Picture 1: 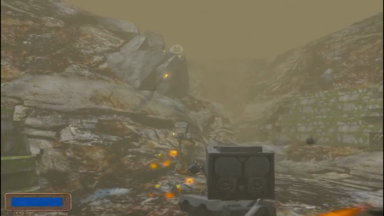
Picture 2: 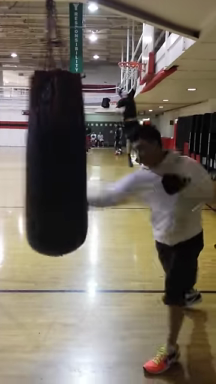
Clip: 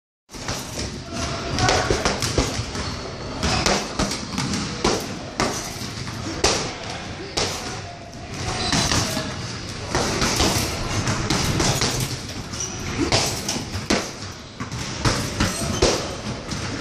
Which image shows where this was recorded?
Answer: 2